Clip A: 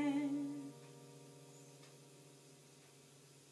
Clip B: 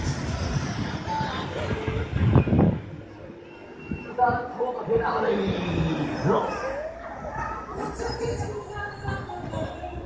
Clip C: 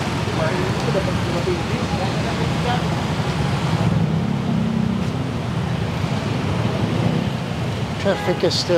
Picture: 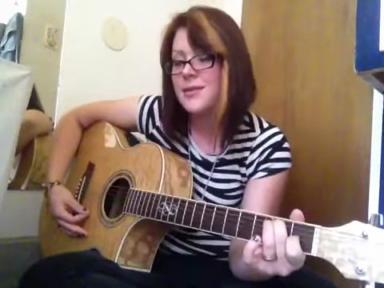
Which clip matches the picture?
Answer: A